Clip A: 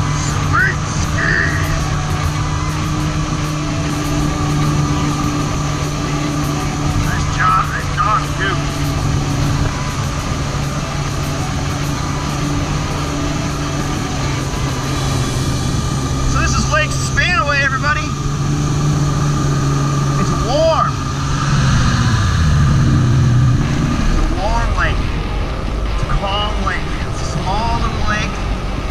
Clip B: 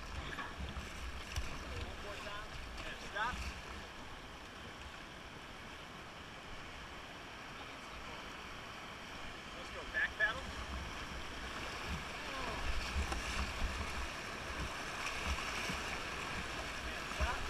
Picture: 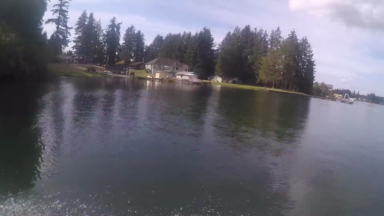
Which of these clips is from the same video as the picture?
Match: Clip A